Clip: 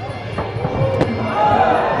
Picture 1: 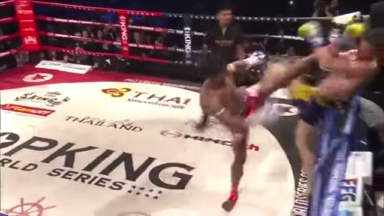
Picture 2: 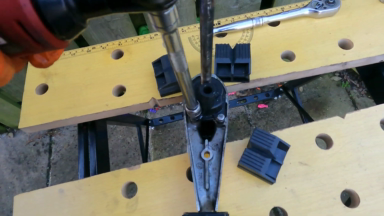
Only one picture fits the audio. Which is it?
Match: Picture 1